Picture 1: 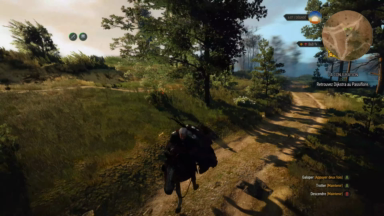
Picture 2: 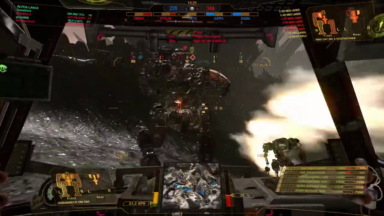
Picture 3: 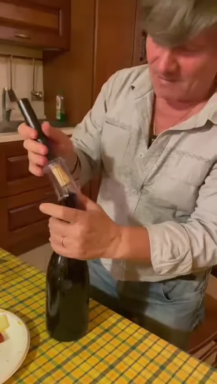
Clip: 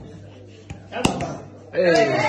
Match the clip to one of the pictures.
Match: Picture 3